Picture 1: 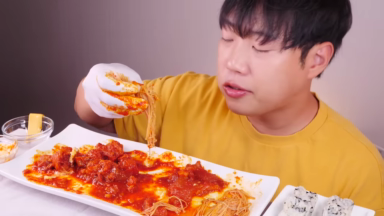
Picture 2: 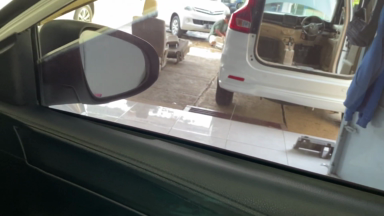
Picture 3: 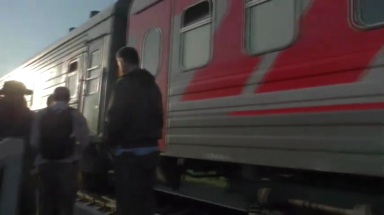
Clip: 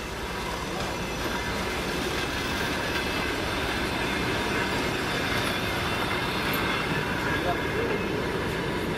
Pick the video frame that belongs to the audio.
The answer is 3